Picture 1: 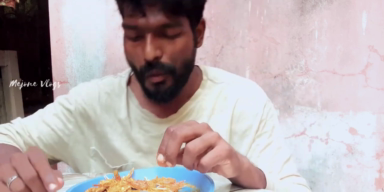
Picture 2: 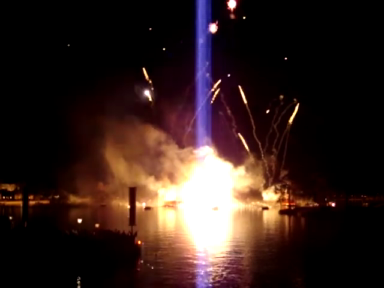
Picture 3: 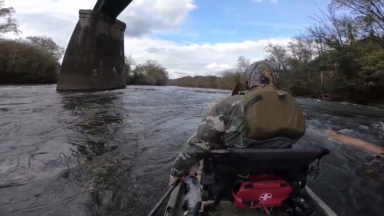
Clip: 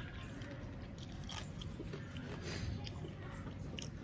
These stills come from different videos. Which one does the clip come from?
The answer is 1